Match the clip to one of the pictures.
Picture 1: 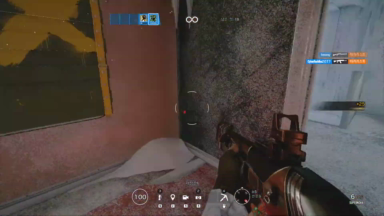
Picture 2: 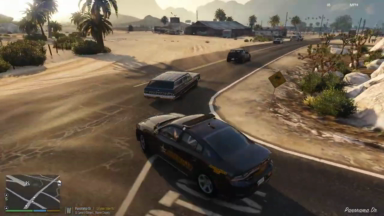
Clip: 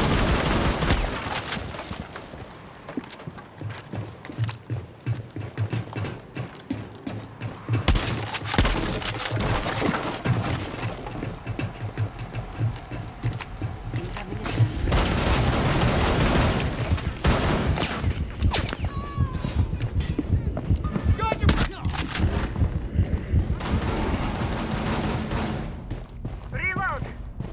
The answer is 1